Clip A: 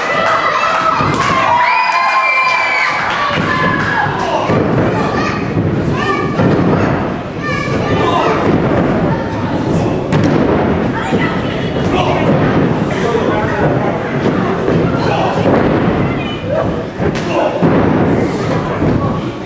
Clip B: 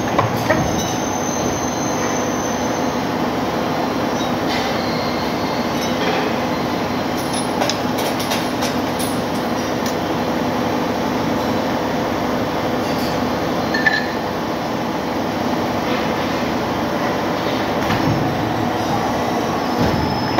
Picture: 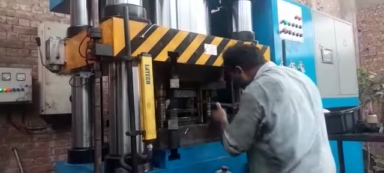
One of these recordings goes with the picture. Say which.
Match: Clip B